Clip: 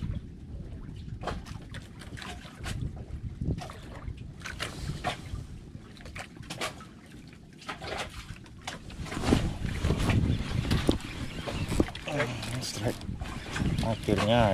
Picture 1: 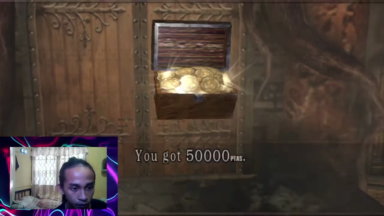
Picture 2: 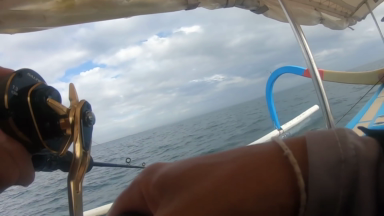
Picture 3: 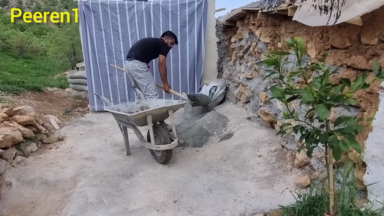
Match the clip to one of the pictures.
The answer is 2